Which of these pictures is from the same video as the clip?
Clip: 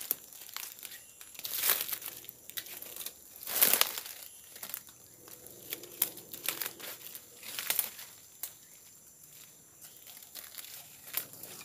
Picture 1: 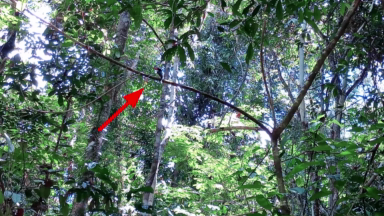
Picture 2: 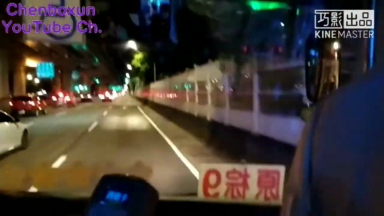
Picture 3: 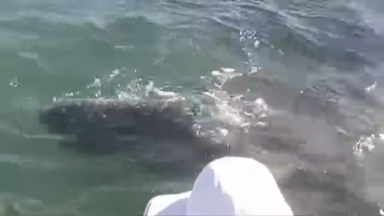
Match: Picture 1